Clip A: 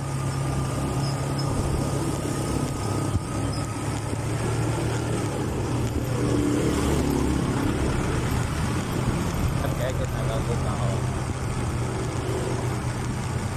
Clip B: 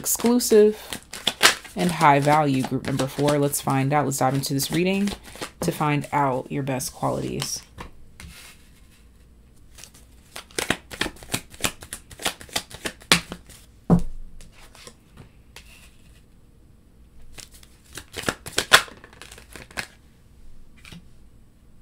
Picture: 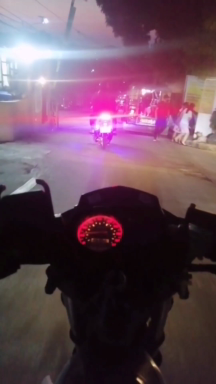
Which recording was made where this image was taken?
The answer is A